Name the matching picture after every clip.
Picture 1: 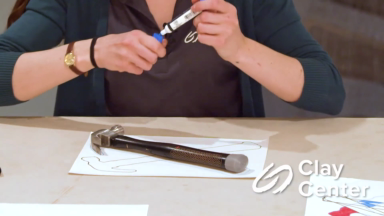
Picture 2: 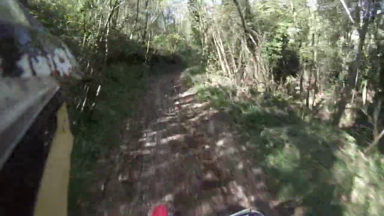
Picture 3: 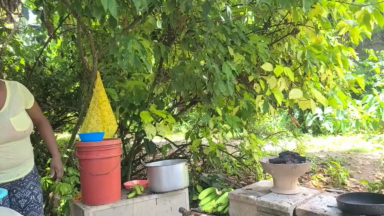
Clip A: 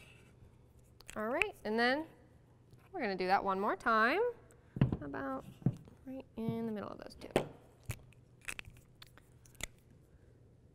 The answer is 1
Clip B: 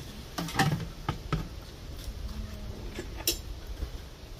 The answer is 3